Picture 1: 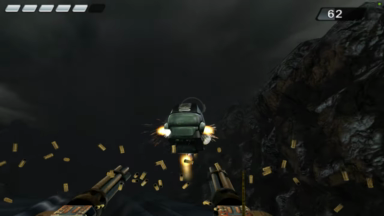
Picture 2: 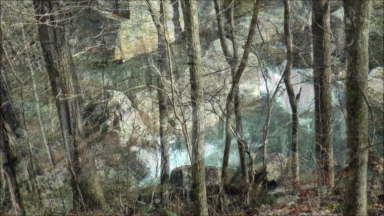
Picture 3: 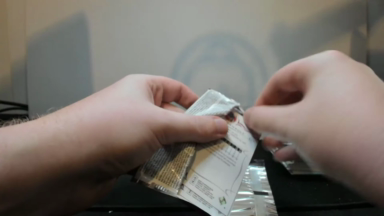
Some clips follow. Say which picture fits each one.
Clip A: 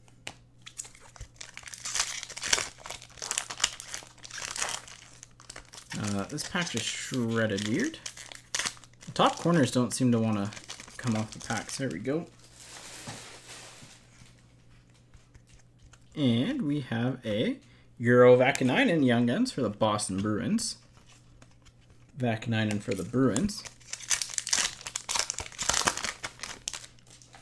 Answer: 3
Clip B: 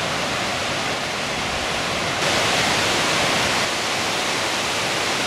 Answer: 2